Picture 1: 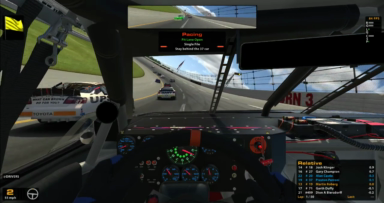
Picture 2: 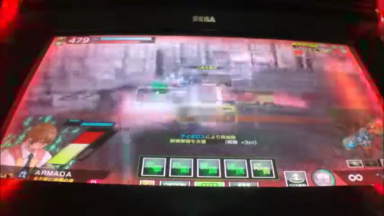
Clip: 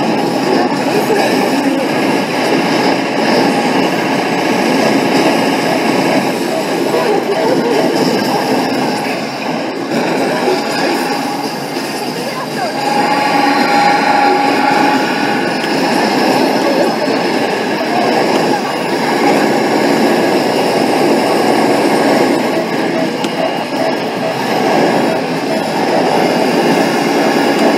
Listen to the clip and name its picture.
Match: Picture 2